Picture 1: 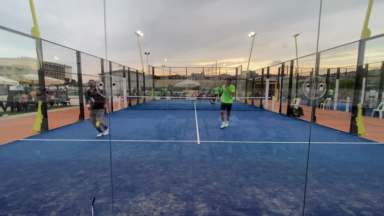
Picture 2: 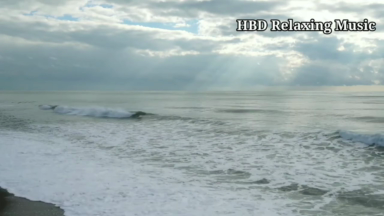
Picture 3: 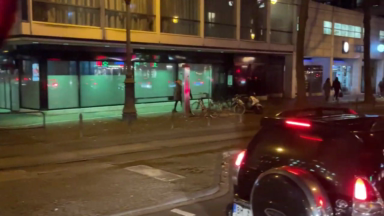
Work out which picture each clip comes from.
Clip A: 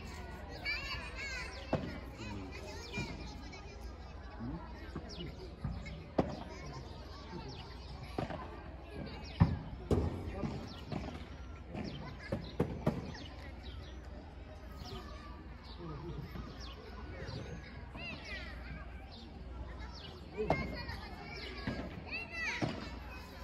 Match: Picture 1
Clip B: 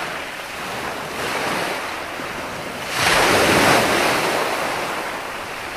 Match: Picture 2